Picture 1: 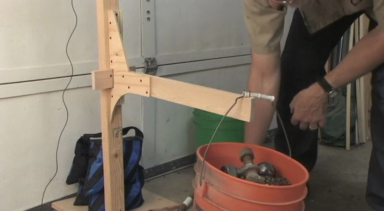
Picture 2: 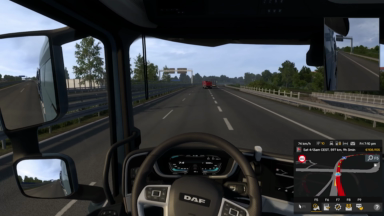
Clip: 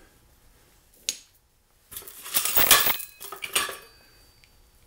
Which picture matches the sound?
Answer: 1